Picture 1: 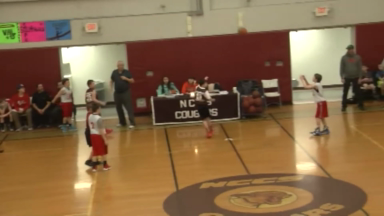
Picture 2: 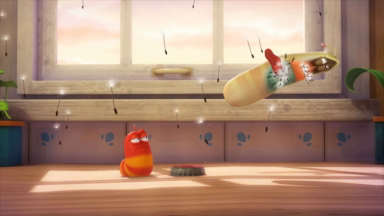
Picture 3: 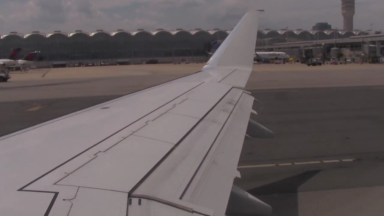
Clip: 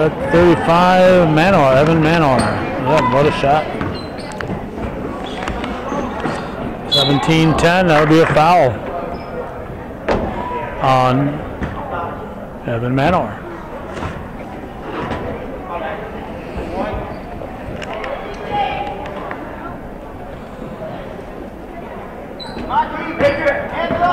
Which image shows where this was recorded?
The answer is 1